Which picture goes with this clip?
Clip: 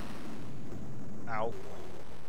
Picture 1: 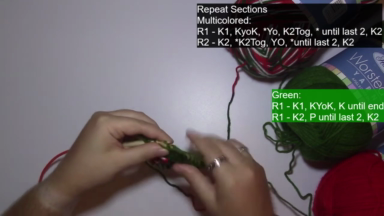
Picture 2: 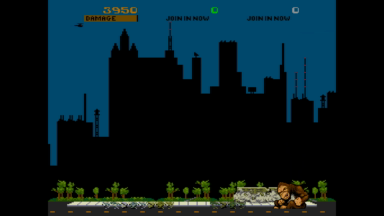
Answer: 2